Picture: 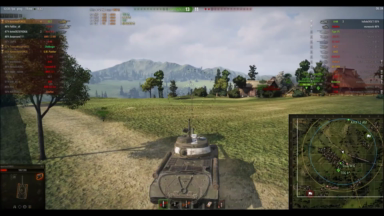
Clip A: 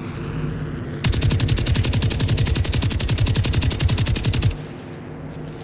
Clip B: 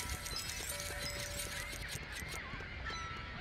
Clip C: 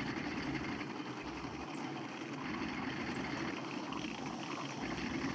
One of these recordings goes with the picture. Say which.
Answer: C